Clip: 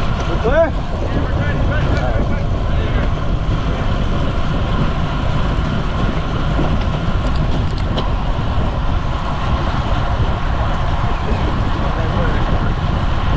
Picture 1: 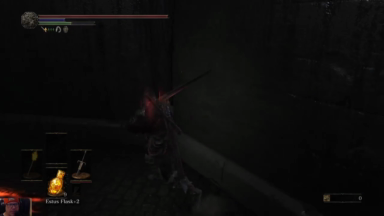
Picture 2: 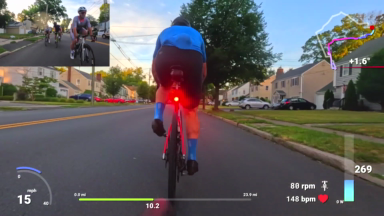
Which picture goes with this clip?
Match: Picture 2